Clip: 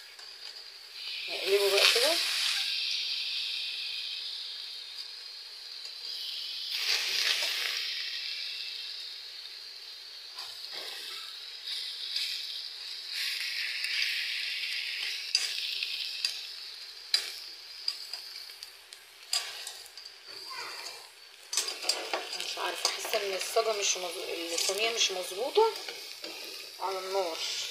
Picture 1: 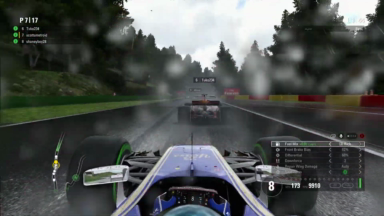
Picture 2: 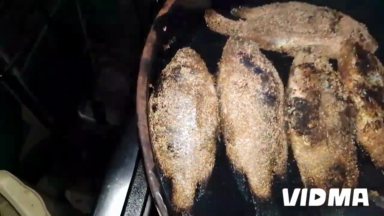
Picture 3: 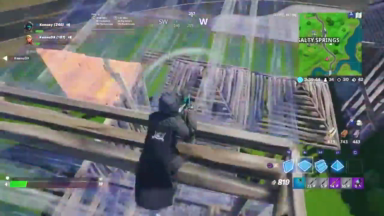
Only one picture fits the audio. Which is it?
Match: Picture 2